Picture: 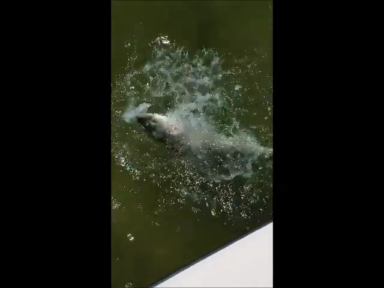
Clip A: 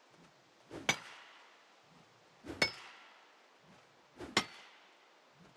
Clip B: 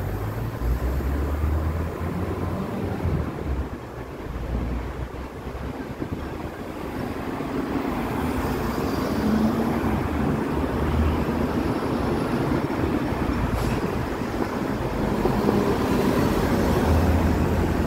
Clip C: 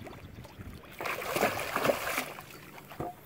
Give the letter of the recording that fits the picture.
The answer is C